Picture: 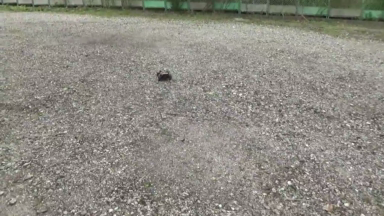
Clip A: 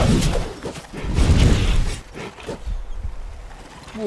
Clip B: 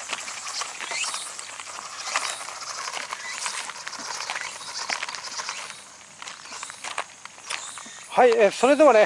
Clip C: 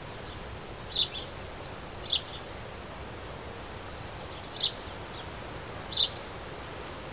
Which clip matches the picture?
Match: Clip B